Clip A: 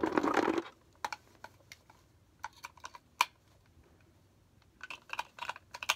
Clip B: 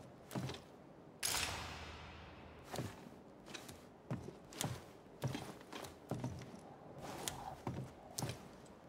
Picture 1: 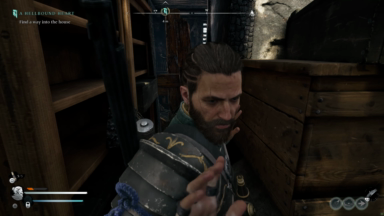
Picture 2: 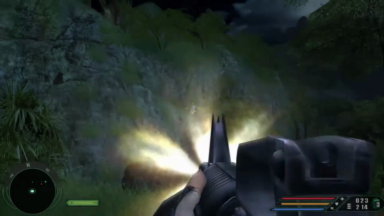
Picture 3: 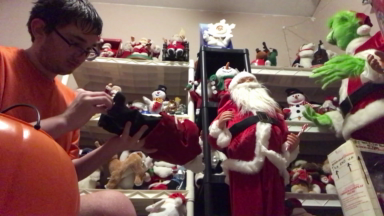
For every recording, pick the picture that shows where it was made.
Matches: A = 3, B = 1